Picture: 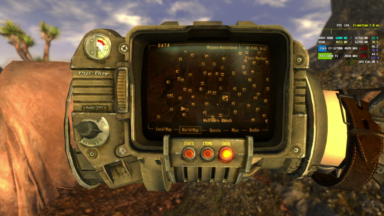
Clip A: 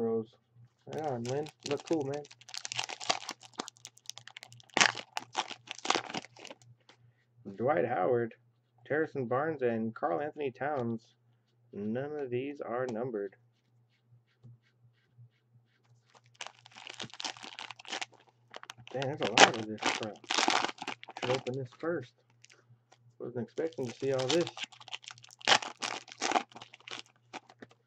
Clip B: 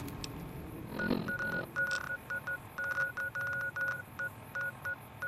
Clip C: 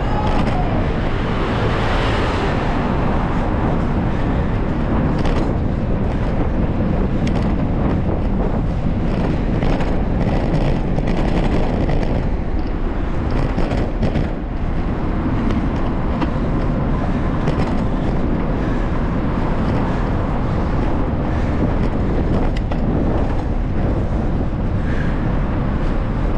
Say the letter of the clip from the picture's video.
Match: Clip B